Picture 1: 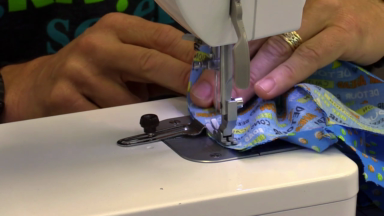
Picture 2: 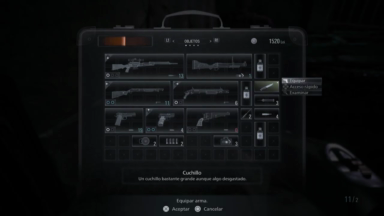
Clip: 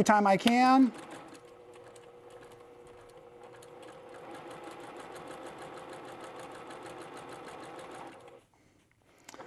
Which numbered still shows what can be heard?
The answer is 1